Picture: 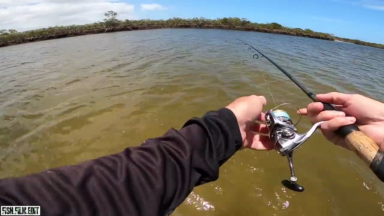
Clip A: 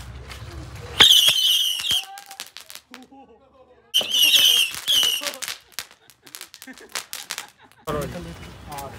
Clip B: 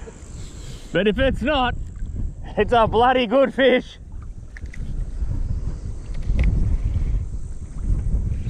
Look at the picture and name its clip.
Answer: B